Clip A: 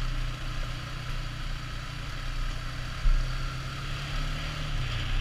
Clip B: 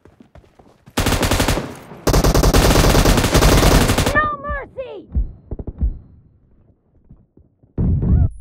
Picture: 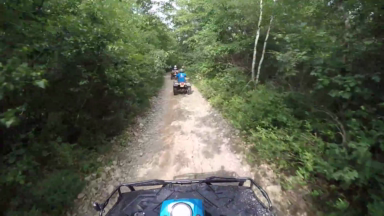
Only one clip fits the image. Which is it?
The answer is A